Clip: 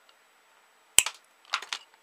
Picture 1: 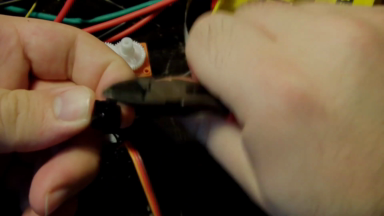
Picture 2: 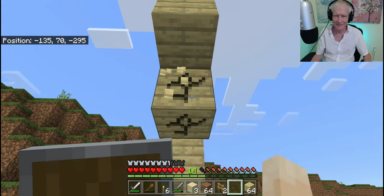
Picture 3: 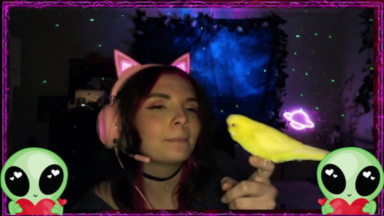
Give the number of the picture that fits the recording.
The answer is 1